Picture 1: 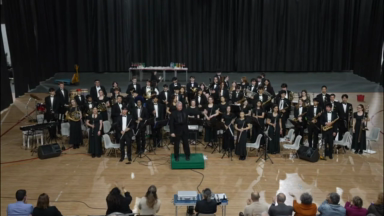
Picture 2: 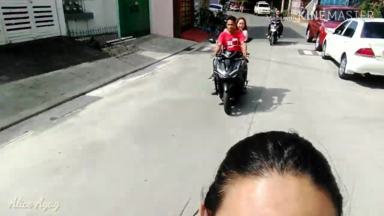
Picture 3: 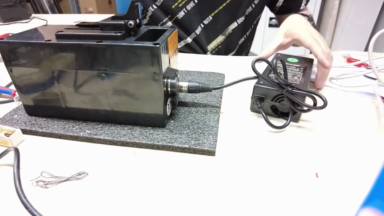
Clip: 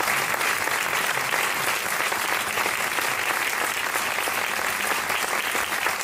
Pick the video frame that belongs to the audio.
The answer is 1